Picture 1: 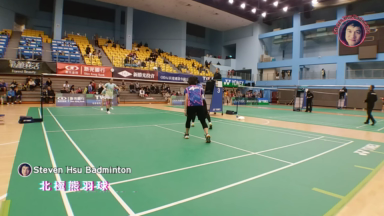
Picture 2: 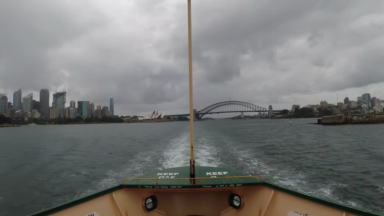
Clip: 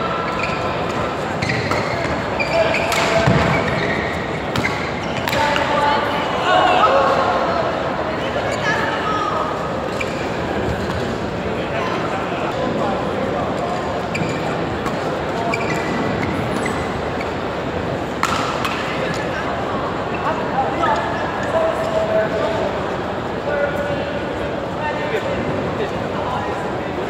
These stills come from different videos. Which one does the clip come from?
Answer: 1